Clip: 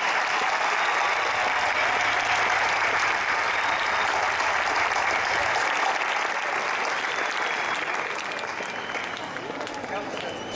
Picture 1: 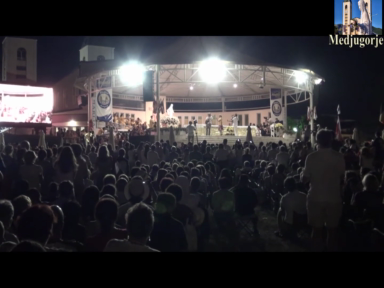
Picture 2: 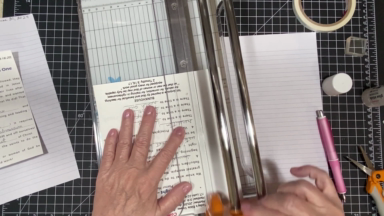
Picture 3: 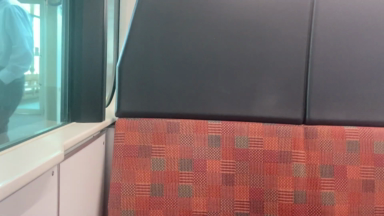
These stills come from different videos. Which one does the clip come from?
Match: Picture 1